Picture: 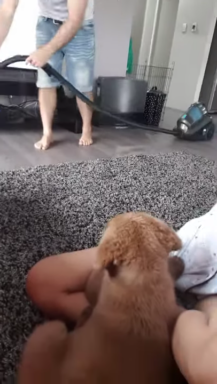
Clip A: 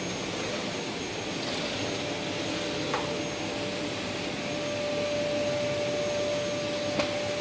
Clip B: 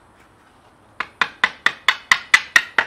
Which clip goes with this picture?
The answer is A